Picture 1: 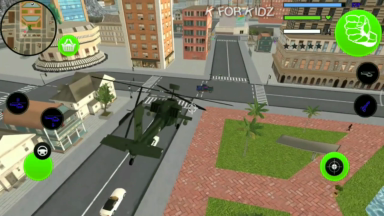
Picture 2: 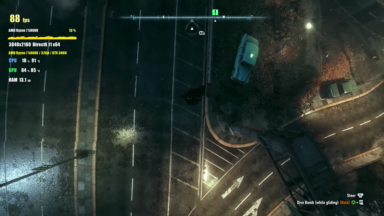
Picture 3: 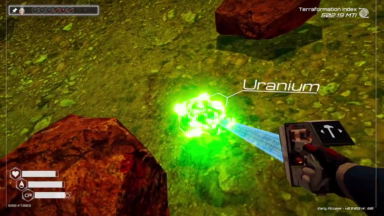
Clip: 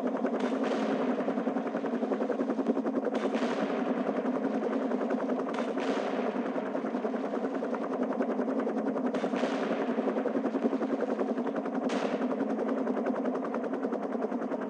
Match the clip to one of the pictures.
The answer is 1